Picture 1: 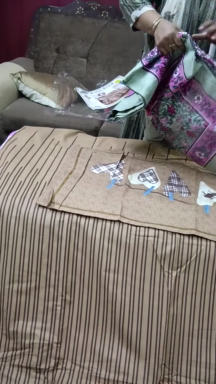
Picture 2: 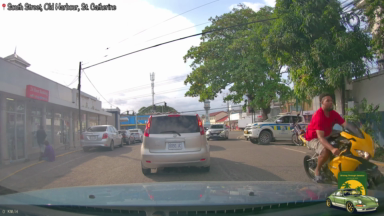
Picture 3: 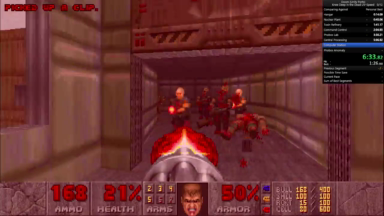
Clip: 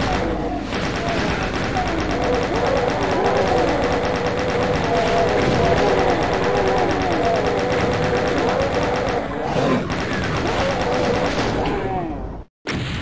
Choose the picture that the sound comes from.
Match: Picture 3